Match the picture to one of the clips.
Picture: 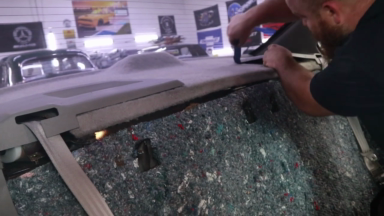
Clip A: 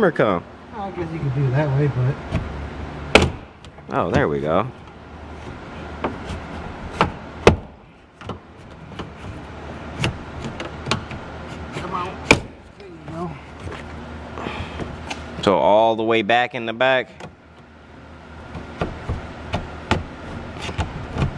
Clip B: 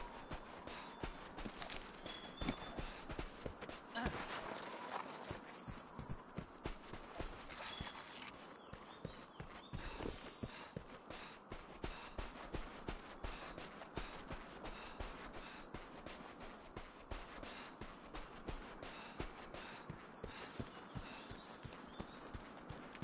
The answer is A